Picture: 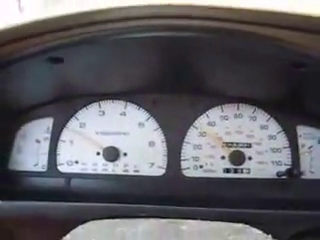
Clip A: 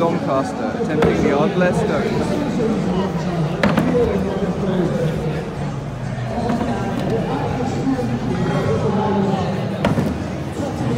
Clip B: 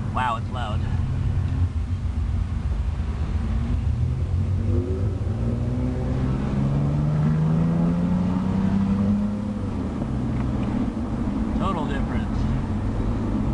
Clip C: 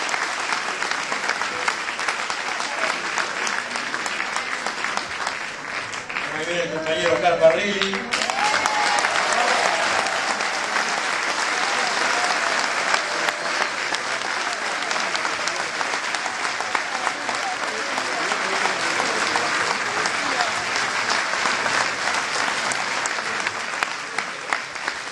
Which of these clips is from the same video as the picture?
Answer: B